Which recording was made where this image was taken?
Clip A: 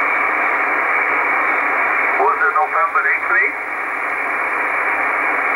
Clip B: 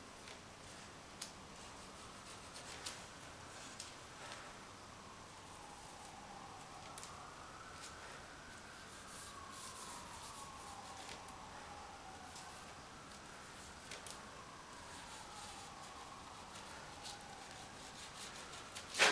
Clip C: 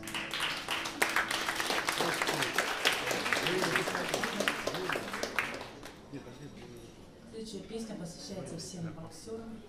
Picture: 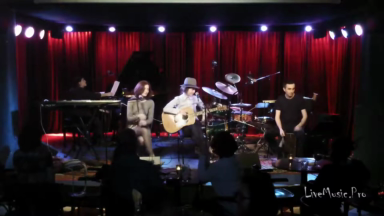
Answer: C